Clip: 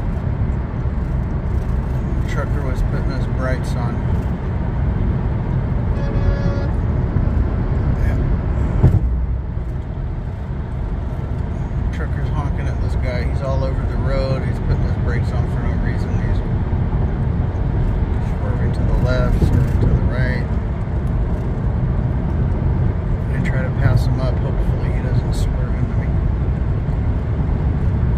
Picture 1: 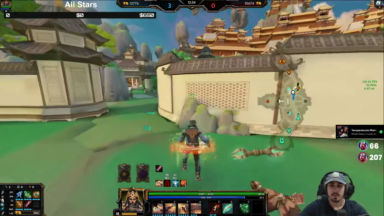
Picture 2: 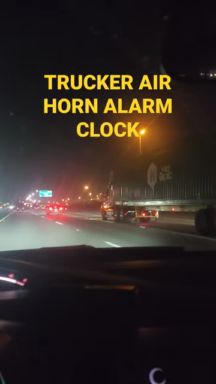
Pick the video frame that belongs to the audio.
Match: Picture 2